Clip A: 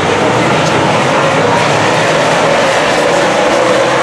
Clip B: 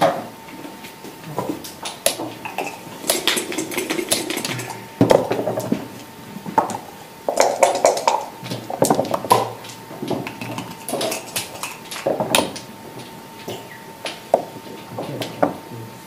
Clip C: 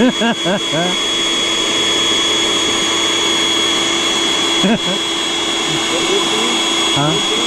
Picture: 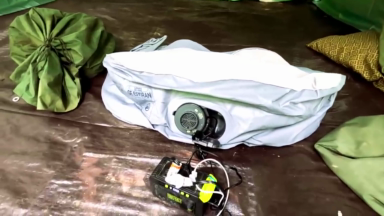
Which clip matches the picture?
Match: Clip C